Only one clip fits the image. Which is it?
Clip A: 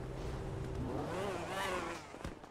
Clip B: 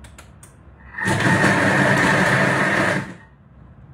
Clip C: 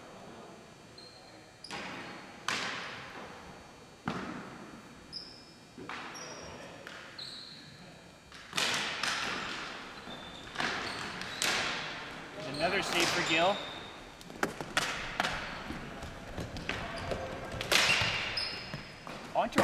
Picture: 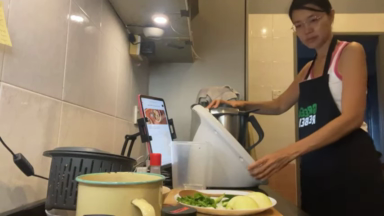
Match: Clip B